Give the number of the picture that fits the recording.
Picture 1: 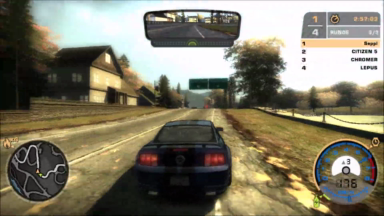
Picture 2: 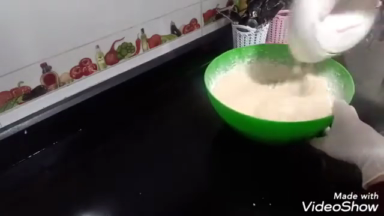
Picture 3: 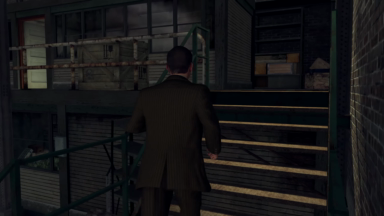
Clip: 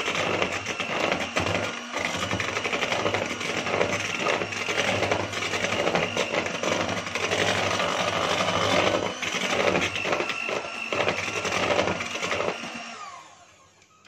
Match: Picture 2